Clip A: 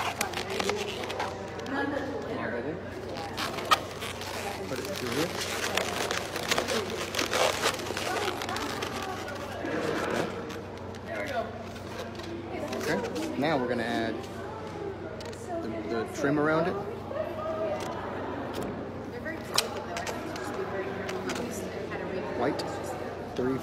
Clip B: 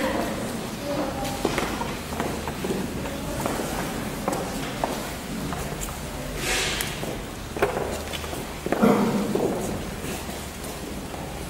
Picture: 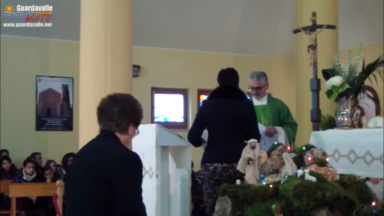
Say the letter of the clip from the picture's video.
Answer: B